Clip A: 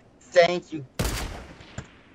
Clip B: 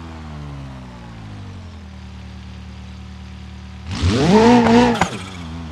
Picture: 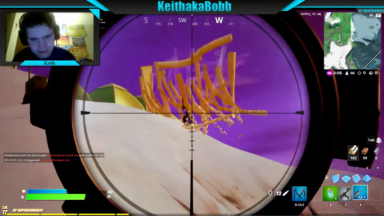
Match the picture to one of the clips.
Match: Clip A